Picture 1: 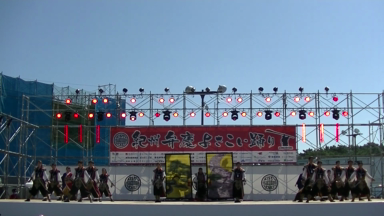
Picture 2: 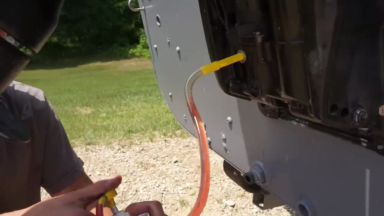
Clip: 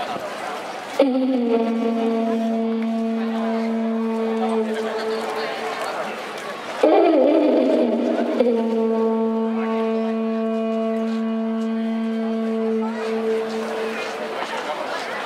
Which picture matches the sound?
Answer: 1